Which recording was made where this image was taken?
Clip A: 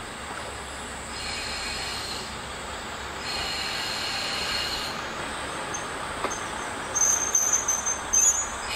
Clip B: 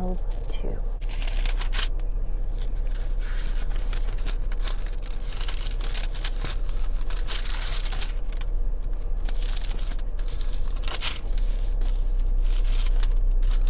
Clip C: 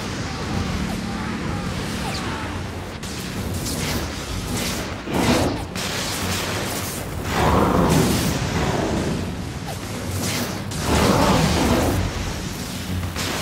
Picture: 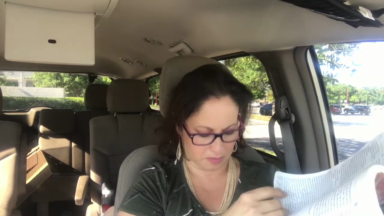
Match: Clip B